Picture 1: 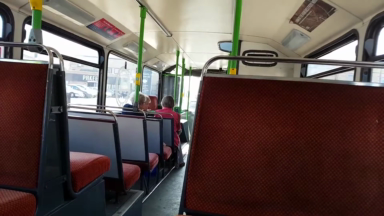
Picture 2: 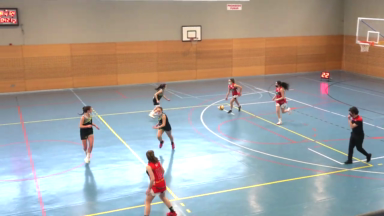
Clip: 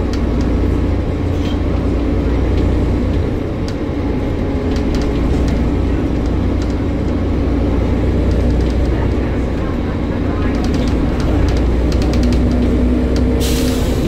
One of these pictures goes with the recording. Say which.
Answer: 1